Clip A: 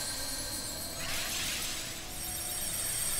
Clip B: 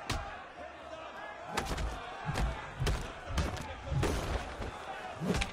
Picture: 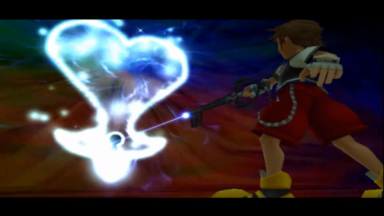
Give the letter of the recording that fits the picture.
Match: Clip A